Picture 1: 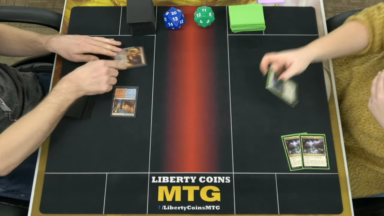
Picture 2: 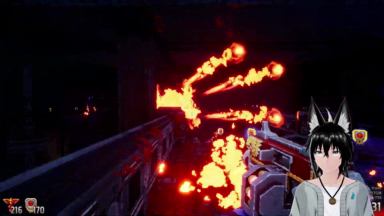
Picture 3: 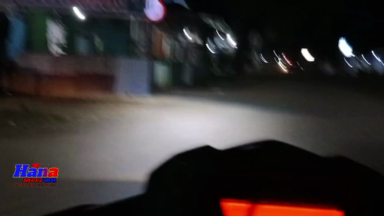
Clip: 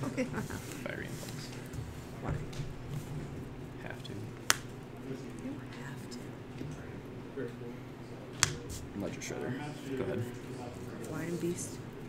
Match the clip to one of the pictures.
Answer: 1